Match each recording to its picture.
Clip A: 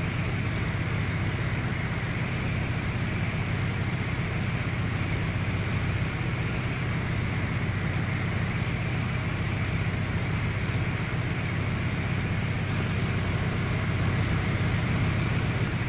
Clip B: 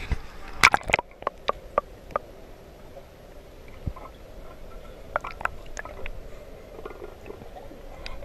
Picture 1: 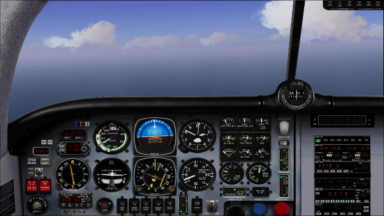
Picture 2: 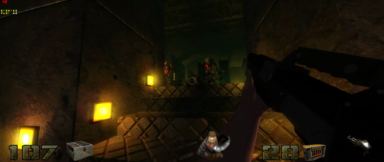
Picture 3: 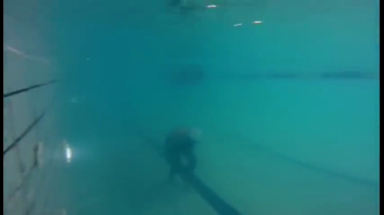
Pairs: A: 1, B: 3